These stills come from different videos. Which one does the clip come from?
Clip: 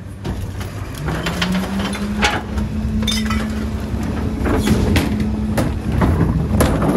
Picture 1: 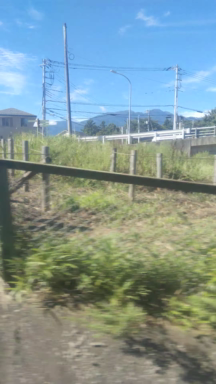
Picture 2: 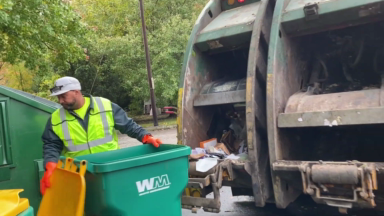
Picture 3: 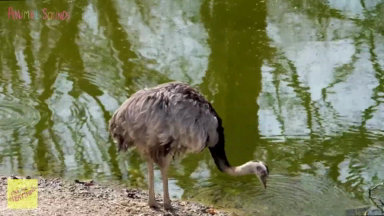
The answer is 2